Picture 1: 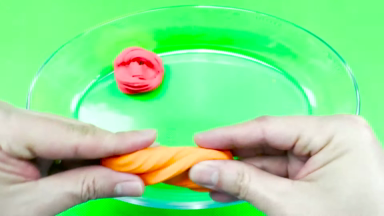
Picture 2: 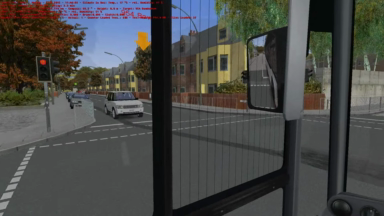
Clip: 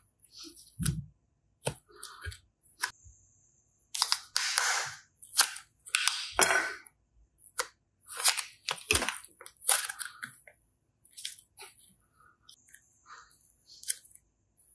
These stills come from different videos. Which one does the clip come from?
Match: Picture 1